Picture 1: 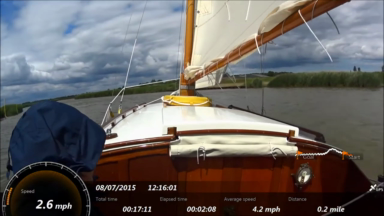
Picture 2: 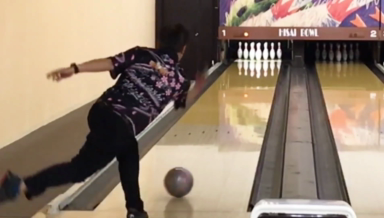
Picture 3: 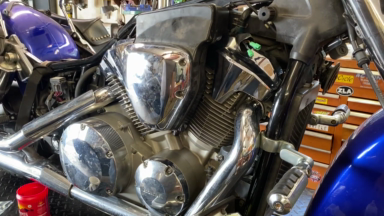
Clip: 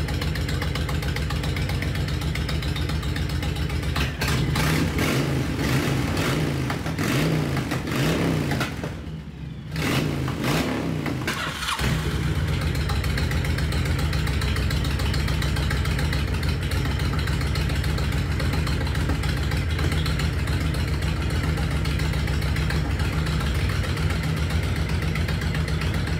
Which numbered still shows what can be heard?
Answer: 3